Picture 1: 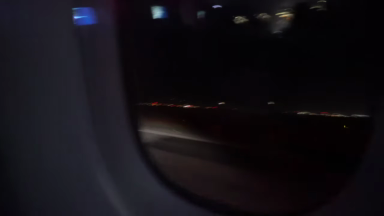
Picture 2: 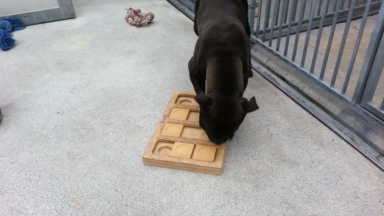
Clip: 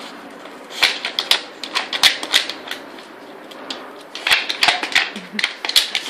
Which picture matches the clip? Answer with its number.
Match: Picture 2